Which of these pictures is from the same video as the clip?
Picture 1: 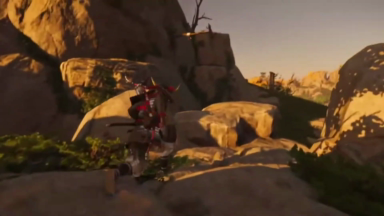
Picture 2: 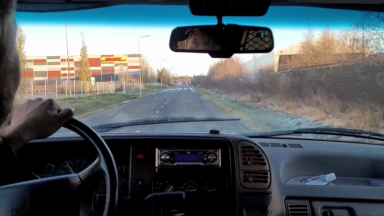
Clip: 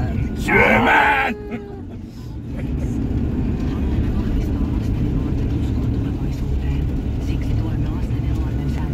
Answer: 2